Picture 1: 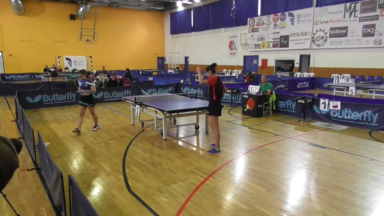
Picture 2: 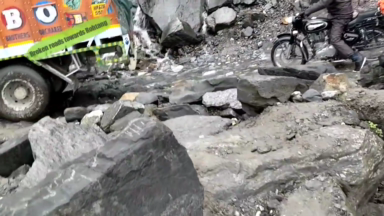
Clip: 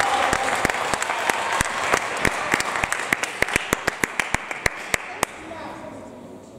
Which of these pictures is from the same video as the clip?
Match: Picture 1